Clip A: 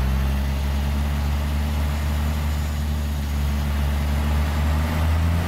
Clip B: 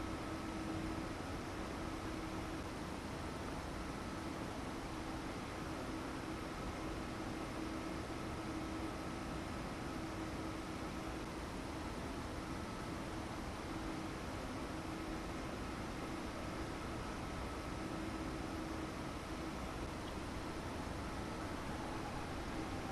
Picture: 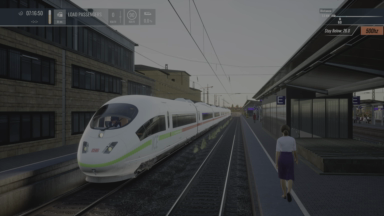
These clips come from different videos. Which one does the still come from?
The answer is B